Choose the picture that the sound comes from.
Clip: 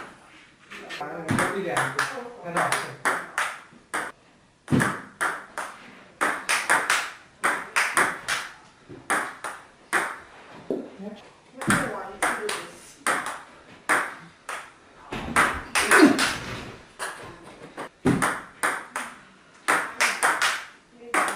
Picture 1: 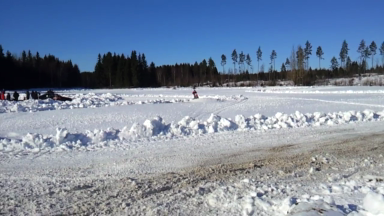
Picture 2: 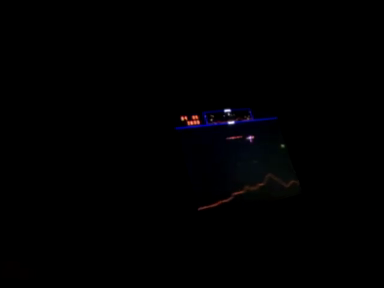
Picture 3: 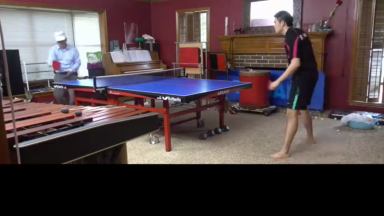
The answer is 3